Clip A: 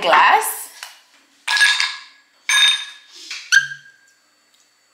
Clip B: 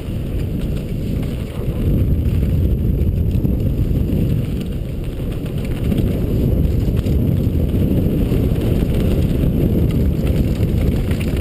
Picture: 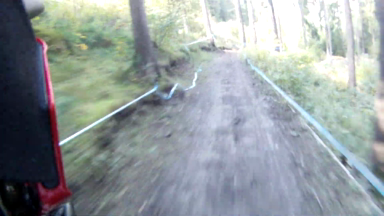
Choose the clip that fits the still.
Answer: B